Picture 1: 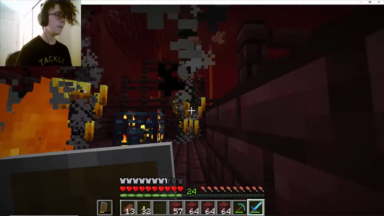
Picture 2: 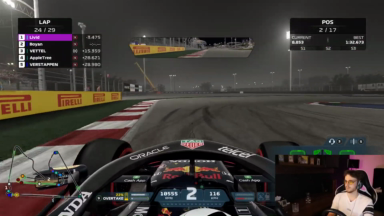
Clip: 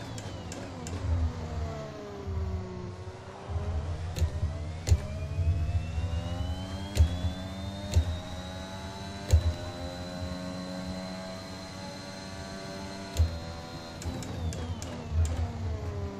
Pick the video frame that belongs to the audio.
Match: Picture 2